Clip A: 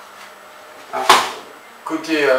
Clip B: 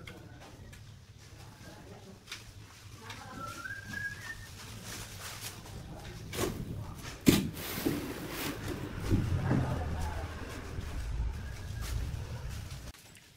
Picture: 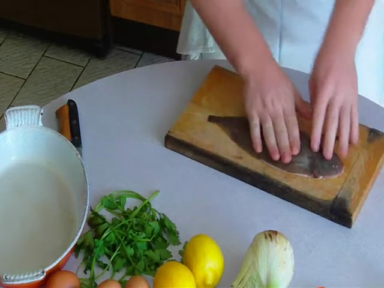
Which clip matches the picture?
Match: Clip A